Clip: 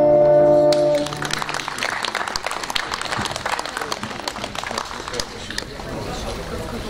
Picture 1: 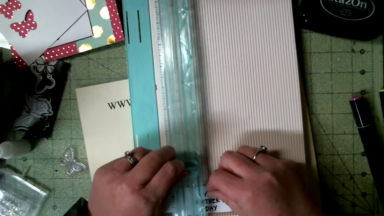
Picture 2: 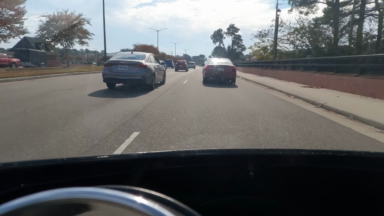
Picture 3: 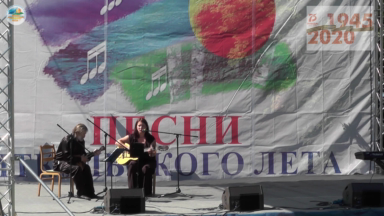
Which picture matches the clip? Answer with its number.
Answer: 3